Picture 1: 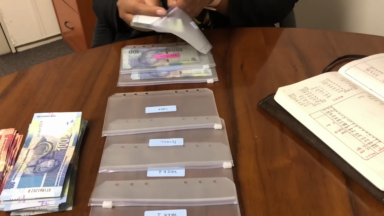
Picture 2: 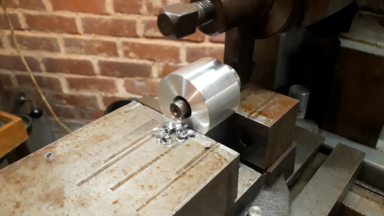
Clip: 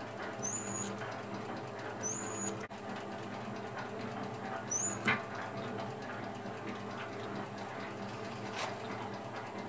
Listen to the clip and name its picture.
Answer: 2